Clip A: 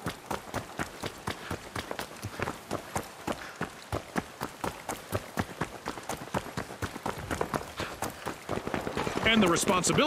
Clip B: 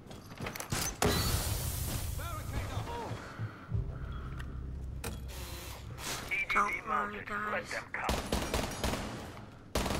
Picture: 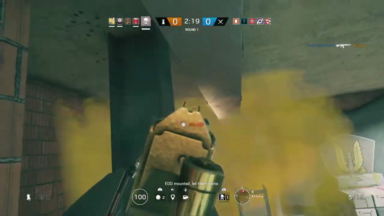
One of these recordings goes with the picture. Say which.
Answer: B